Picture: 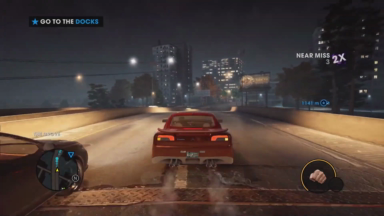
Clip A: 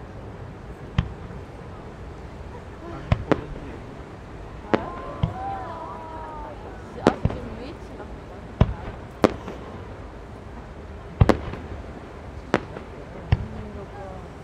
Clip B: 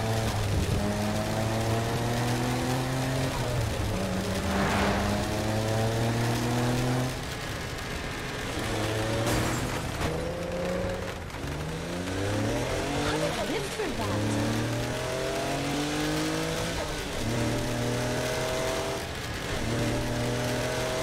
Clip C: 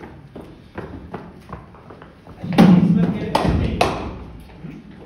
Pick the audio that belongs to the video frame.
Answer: B